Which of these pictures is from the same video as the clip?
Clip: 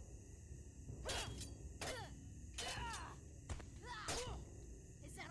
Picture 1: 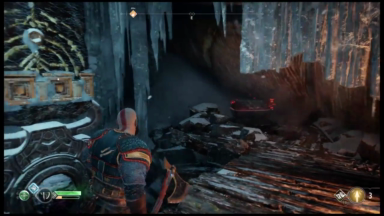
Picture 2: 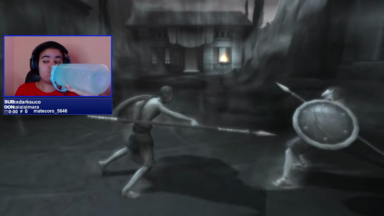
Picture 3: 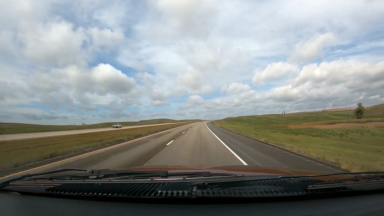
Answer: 2